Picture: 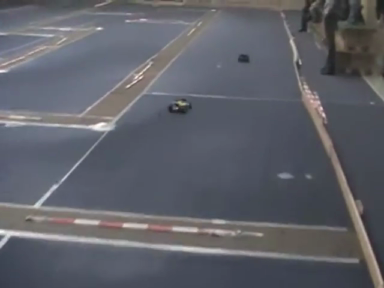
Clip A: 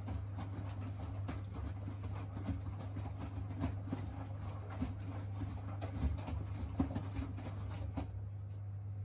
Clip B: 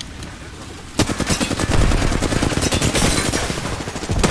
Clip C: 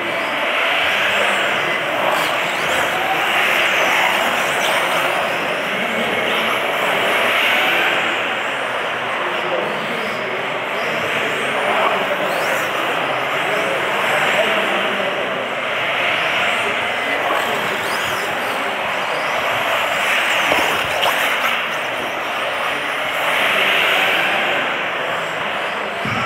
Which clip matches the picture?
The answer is C